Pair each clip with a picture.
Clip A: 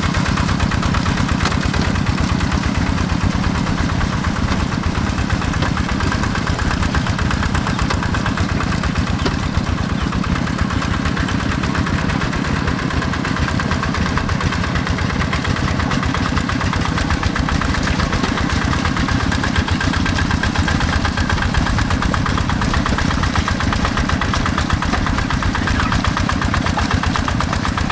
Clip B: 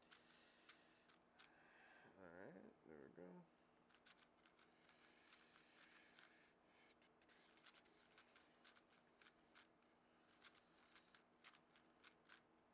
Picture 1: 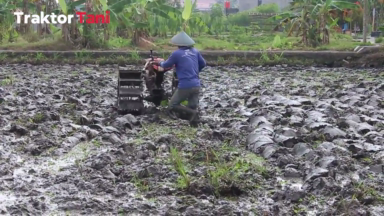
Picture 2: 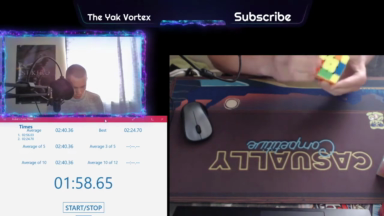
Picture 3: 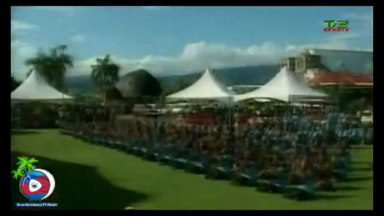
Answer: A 1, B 2